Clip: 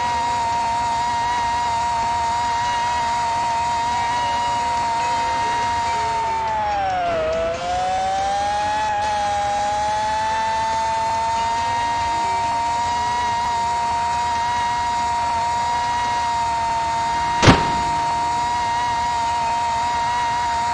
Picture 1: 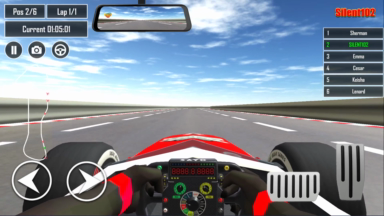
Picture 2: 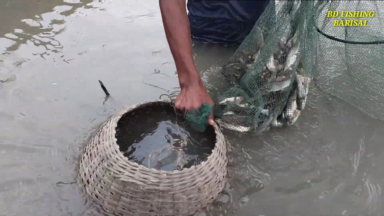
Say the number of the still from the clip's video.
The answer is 1